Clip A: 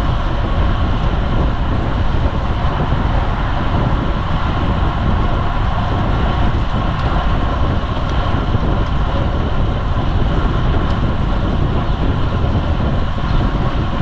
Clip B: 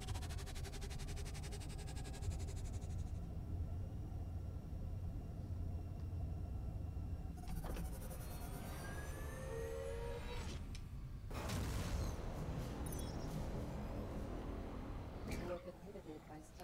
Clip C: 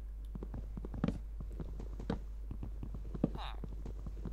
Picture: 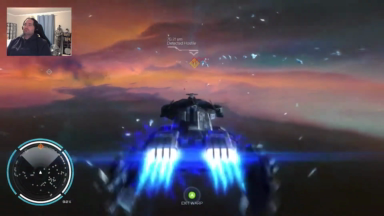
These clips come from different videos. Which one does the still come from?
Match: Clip B